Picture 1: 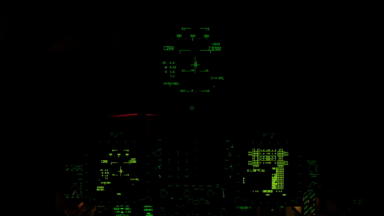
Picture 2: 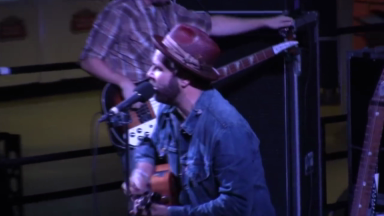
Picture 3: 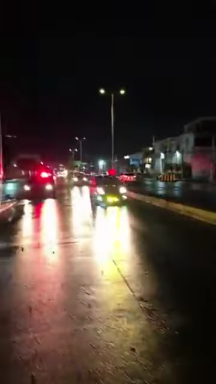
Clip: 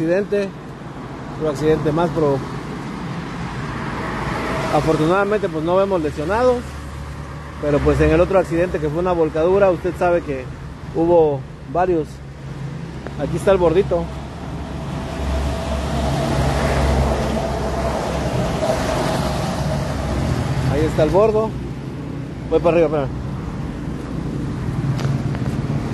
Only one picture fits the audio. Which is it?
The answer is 3